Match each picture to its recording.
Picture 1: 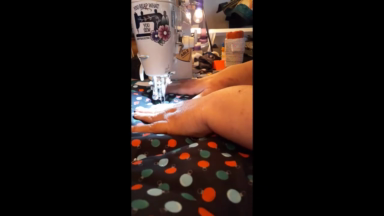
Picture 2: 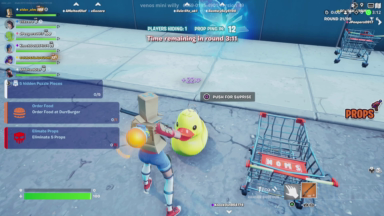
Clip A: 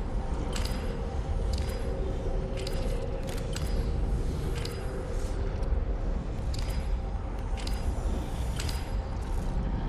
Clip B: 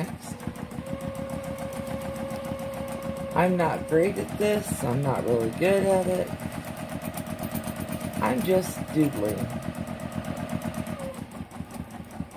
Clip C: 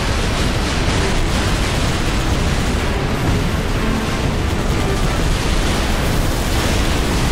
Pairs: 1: B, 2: A